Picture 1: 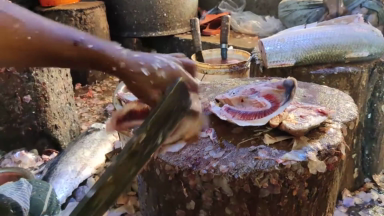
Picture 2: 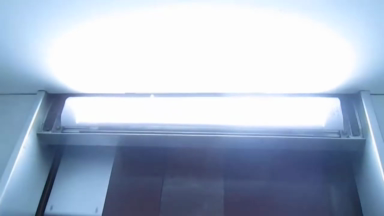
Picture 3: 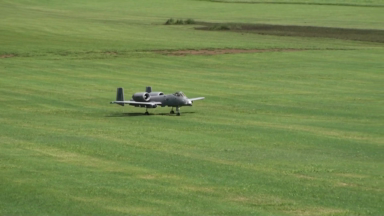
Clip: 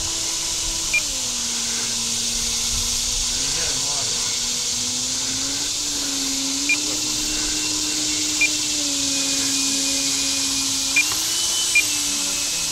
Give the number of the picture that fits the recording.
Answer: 3